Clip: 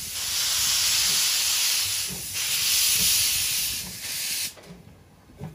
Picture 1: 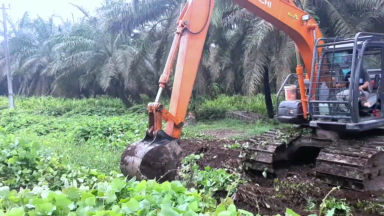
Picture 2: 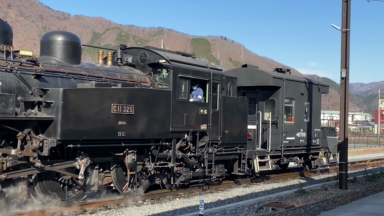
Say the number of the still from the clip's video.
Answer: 2